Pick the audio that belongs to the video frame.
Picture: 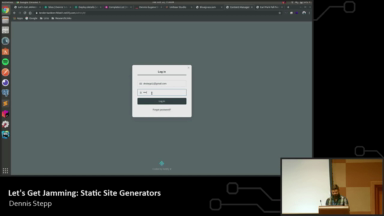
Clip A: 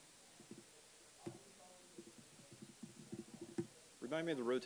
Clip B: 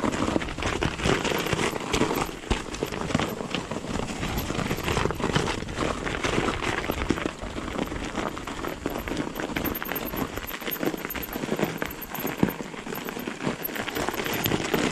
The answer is A